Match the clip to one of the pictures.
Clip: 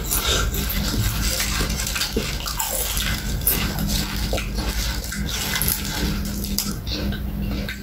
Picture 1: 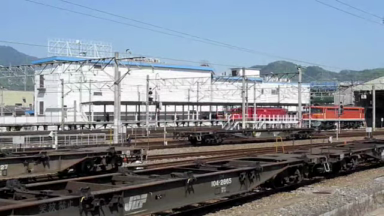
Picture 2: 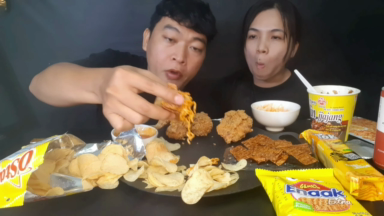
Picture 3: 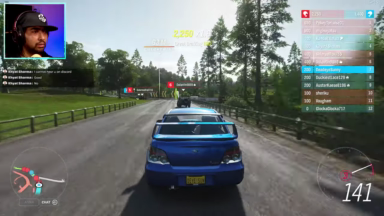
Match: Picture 2